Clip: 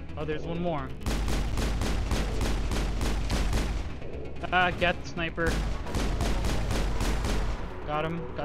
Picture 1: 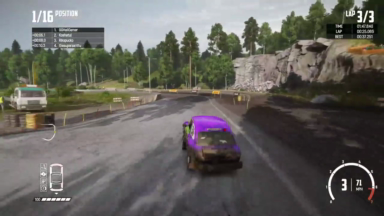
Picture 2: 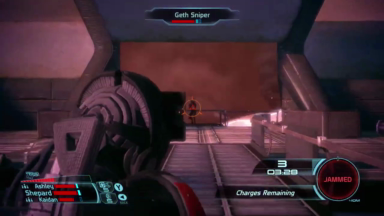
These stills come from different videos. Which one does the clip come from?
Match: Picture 2